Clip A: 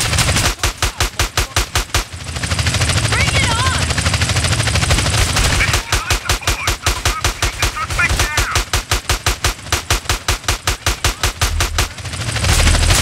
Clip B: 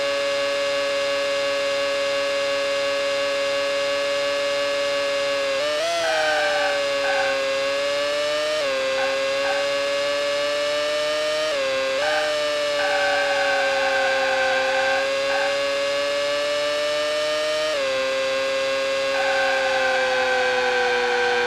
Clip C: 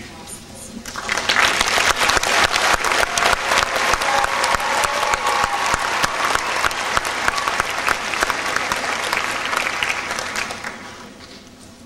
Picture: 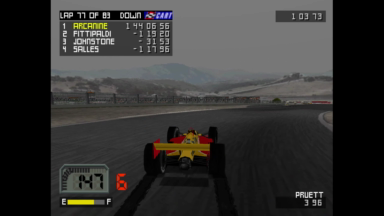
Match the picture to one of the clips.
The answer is B